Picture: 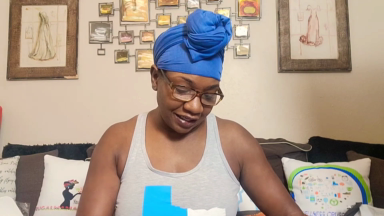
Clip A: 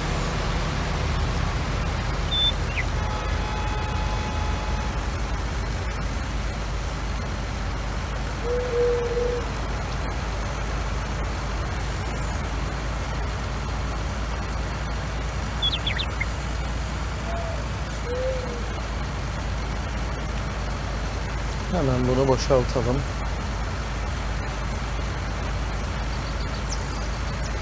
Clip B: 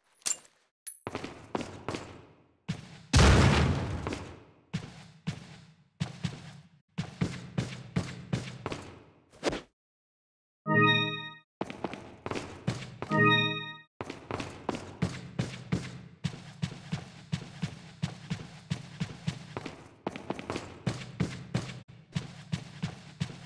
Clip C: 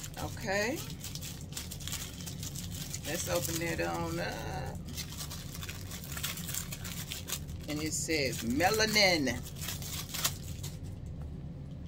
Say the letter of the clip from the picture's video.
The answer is C